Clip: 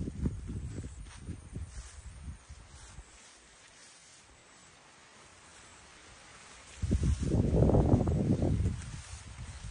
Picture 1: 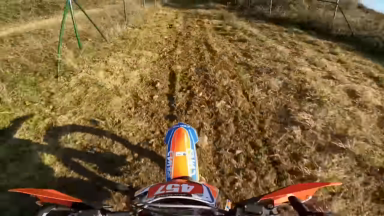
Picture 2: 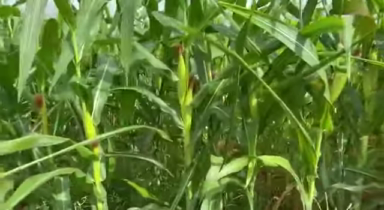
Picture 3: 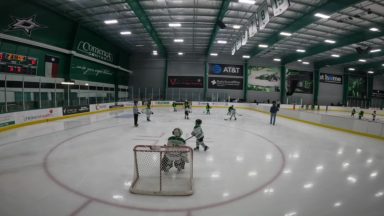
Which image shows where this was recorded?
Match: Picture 2